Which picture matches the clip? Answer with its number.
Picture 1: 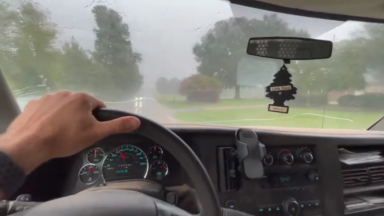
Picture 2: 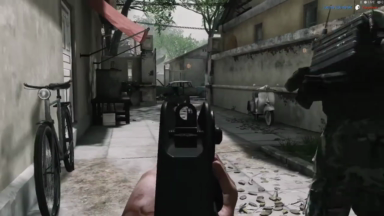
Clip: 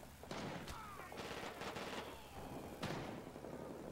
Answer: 2